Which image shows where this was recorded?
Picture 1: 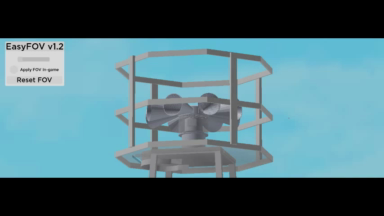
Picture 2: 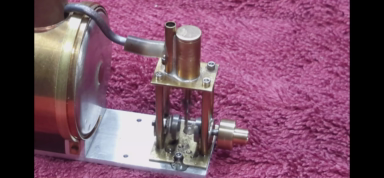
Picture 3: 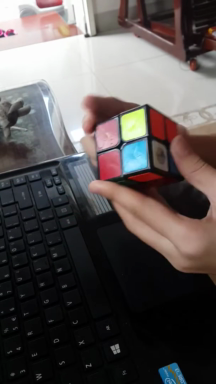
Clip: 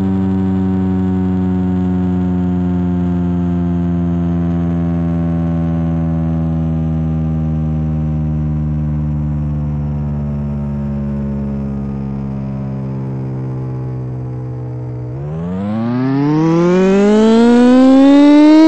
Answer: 1